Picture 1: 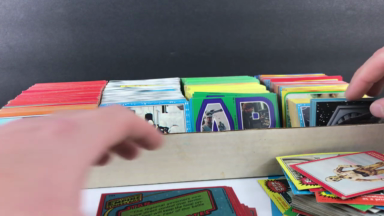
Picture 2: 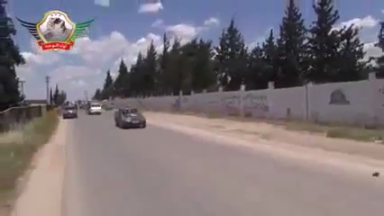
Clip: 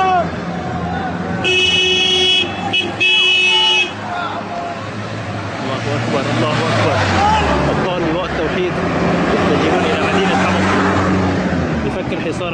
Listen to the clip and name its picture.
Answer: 2